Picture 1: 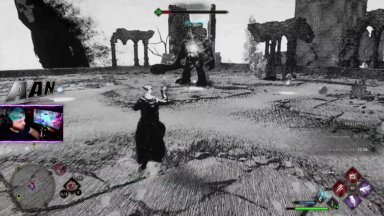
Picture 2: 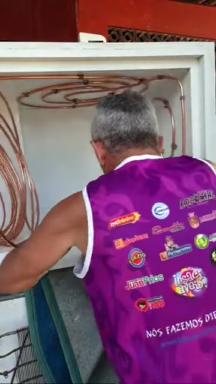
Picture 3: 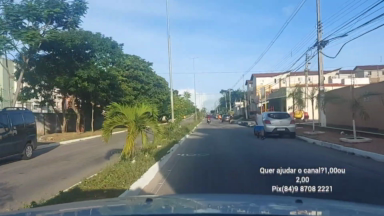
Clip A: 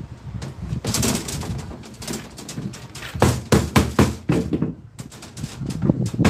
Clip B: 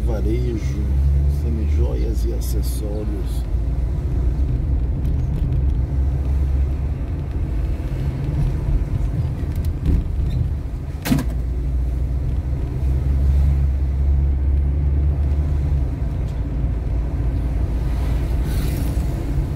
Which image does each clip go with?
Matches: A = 2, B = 3